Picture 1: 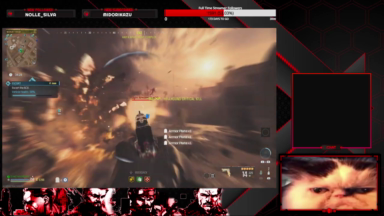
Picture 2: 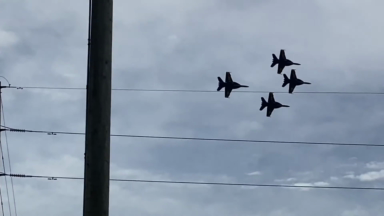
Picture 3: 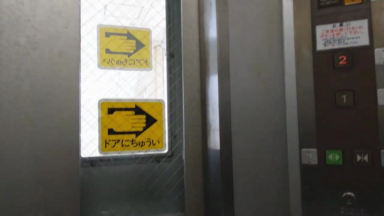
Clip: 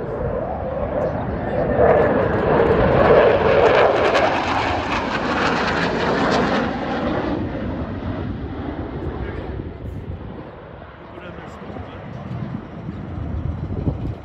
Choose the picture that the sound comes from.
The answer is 2